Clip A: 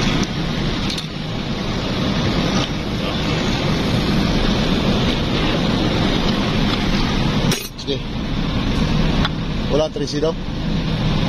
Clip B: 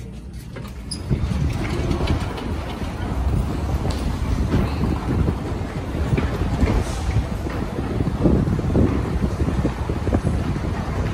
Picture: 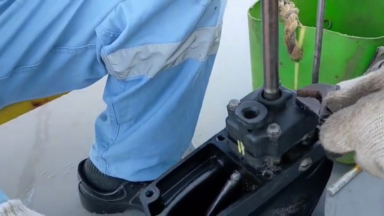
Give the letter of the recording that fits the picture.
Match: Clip A